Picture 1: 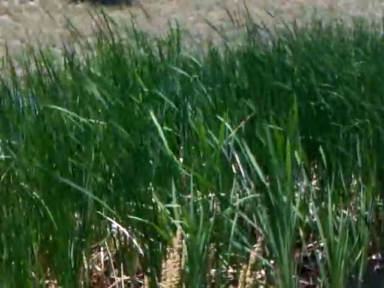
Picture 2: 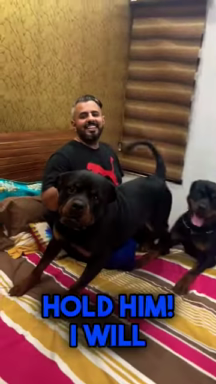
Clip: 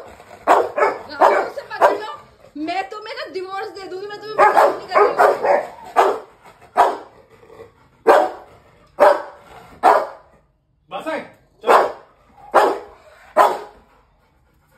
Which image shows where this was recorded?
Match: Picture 2